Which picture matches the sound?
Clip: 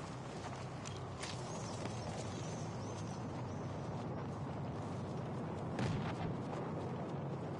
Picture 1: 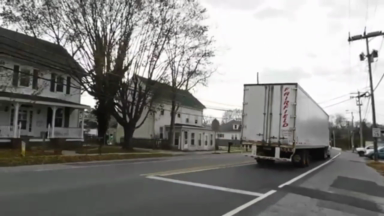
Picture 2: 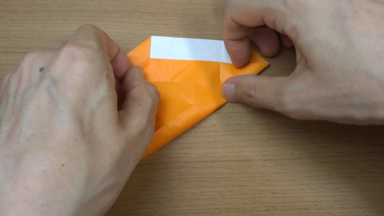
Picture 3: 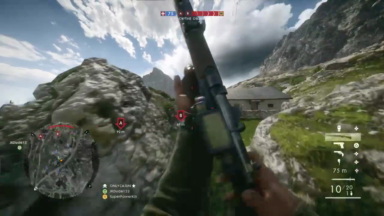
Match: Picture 3